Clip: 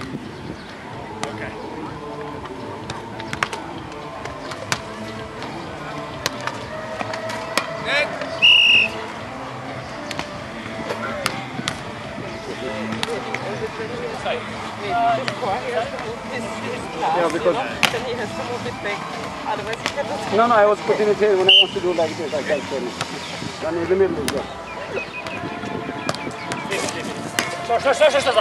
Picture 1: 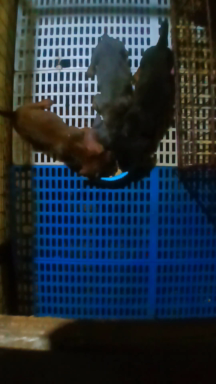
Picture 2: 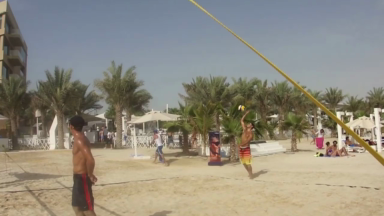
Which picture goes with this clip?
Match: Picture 2